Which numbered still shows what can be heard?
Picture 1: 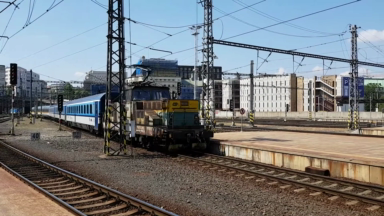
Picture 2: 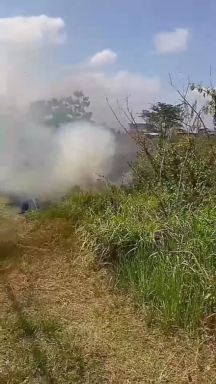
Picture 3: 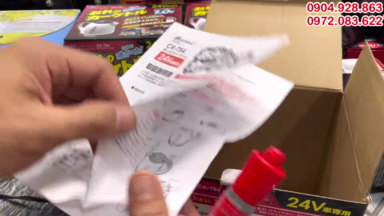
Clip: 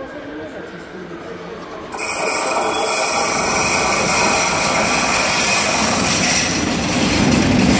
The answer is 1